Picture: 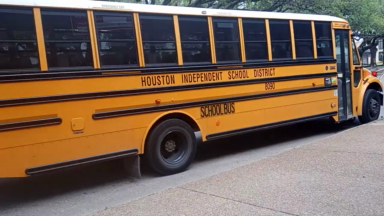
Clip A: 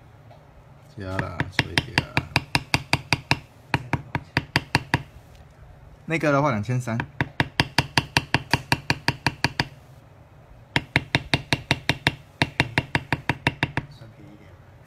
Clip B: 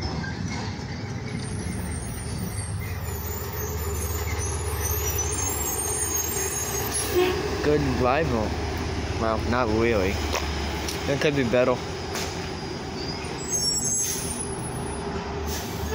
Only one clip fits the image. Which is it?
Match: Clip B